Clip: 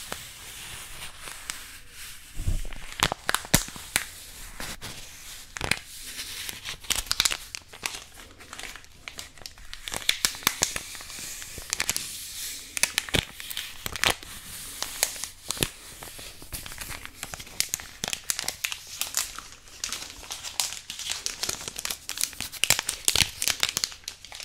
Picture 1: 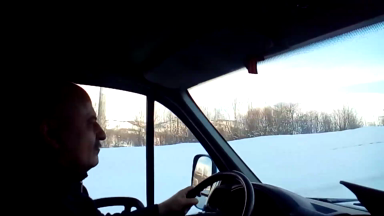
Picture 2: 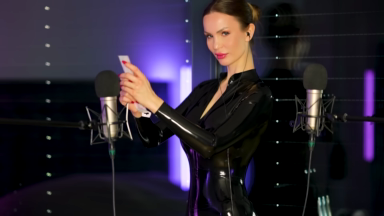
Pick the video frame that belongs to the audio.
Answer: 2